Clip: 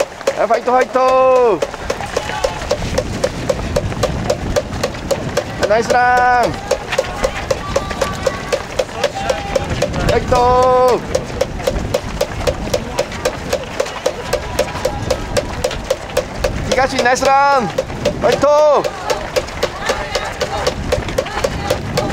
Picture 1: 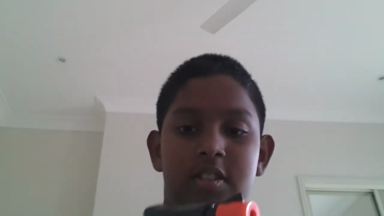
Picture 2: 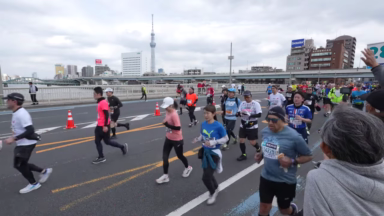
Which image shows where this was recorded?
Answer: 2